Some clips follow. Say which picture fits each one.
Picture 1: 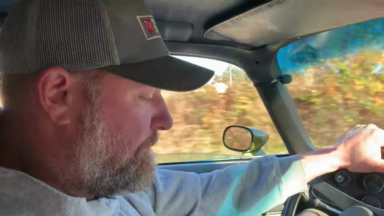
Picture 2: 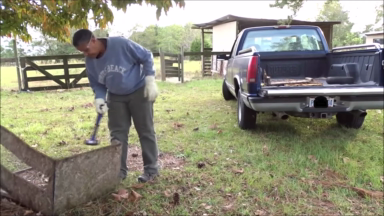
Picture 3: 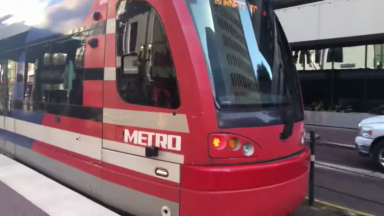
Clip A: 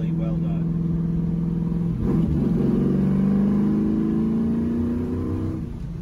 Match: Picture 1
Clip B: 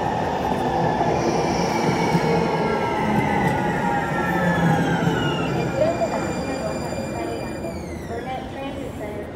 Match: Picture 3